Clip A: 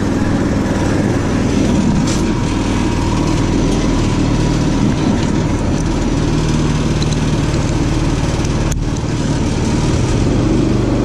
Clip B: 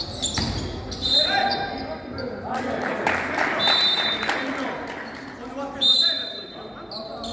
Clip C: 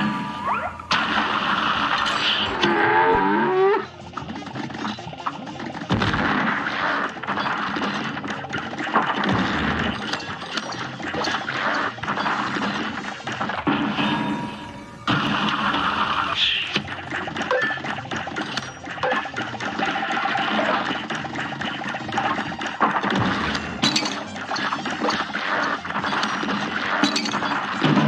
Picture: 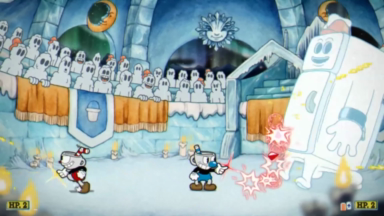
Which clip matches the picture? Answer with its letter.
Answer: C